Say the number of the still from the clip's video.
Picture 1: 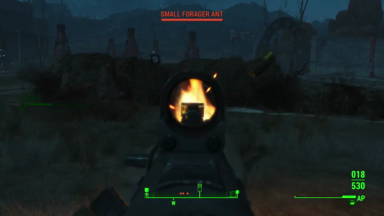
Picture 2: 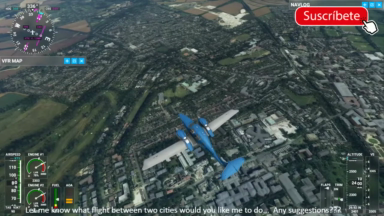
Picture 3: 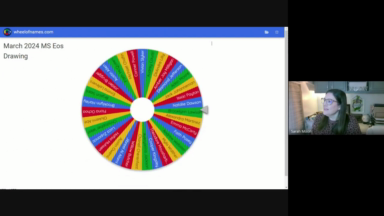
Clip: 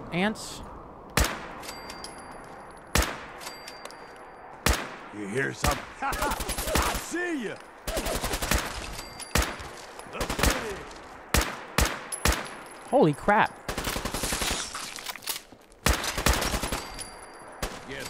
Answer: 1